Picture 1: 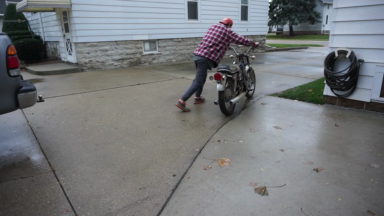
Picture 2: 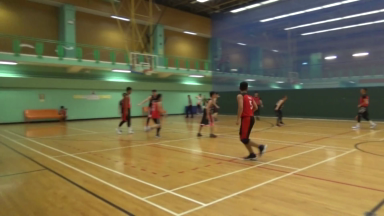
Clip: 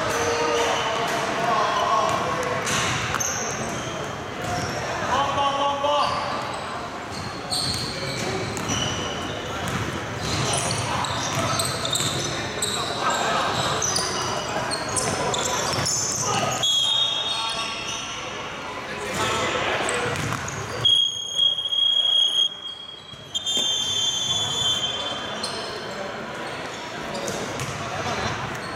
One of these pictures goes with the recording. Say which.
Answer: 2